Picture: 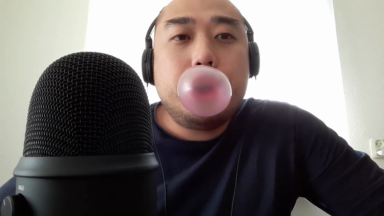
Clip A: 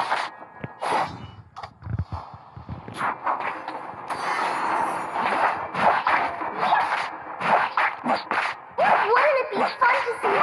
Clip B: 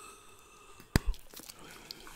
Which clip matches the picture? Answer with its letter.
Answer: B